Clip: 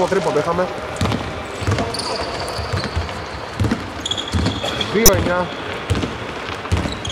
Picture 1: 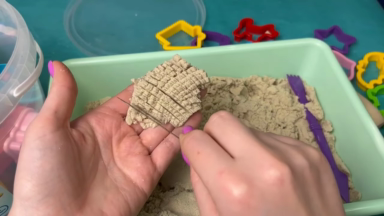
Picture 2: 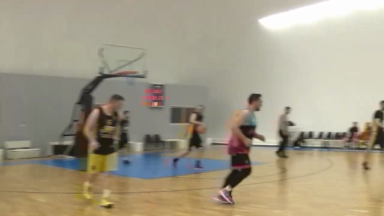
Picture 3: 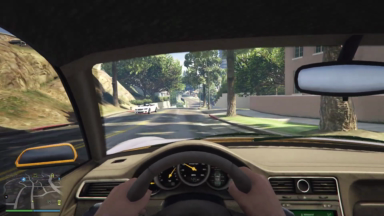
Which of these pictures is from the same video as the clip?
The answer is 2